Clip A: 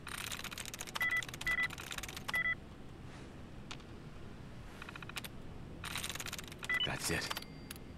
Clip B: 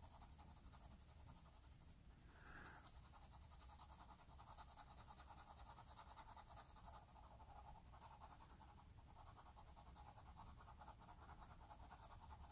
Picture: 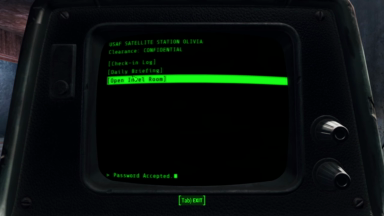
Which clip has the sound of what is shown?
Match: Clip A